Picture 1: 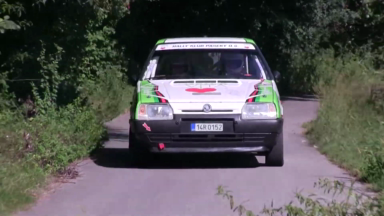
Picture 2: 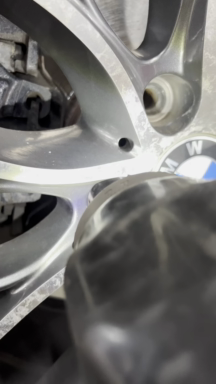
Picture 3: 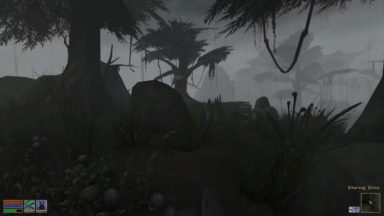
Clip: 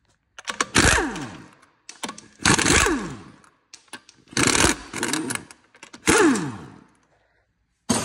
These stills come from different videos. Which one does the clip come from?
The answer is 2